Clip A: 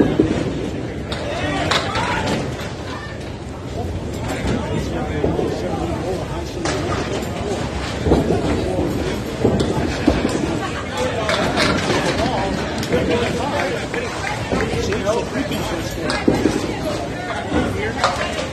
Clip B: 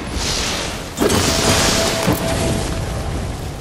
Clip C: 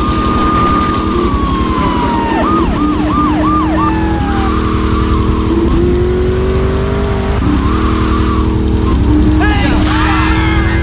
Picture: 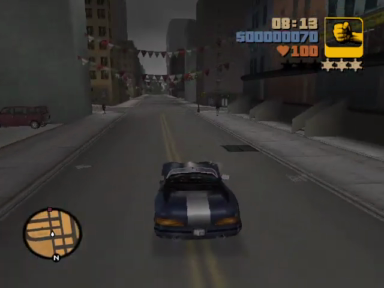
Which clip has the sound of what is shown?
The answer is C